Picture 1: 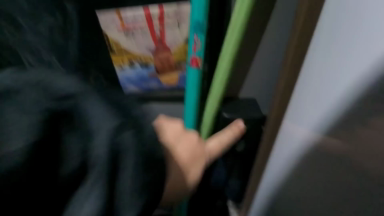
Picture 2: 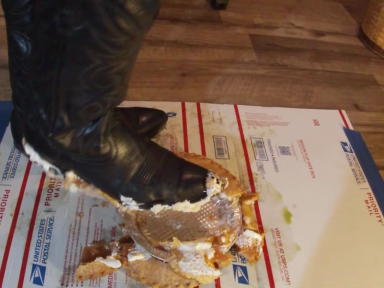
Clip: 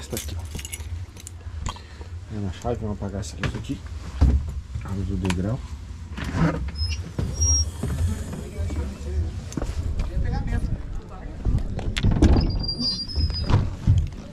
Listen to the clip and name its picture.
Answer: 1